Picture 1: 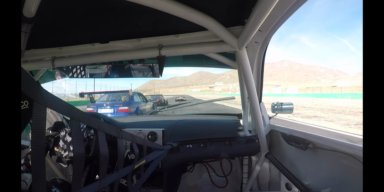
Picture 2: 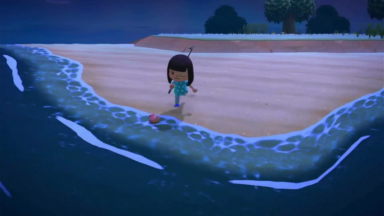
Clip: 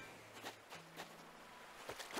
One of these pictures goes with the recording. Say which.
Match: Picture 2